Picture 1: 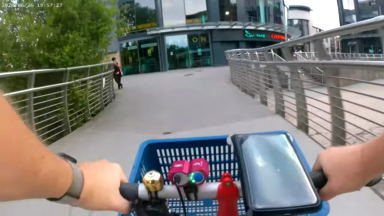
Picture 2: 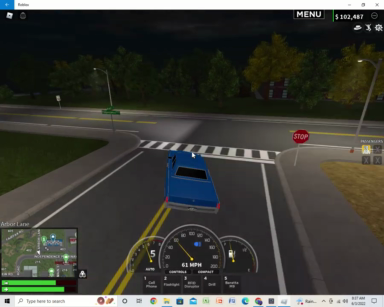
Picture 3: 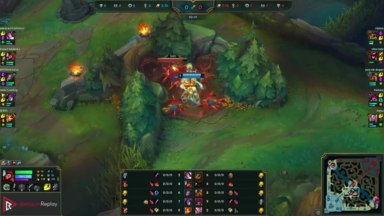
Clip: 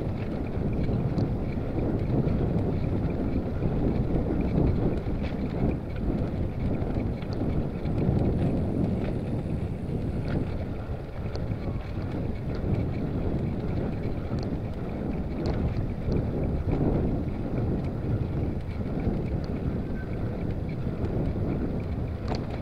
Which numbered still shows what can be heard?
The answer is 1